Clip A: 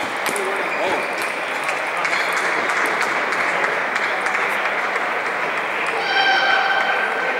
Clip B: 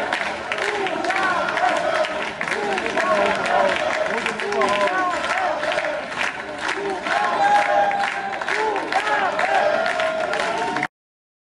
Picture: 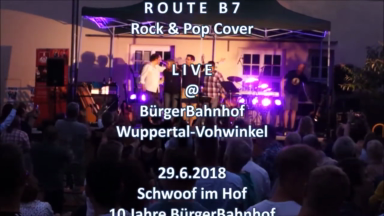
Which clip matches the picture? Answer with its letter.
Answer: B